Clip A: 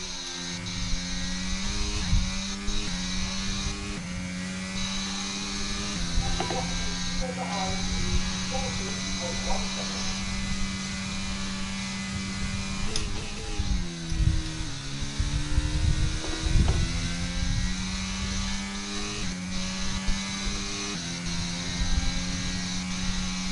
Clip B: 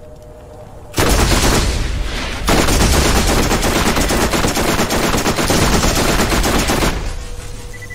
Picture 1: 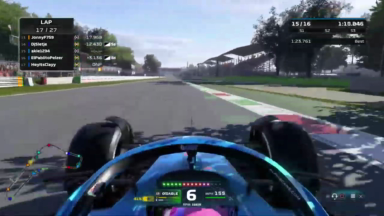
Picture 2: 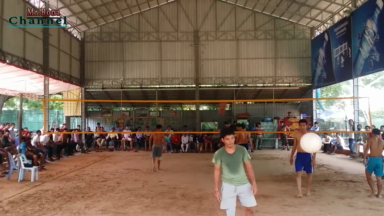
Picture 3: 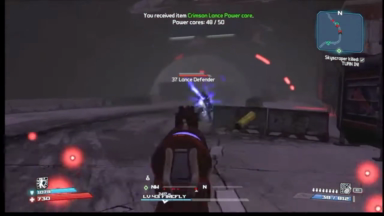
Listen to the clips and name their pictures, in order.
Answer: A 1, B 3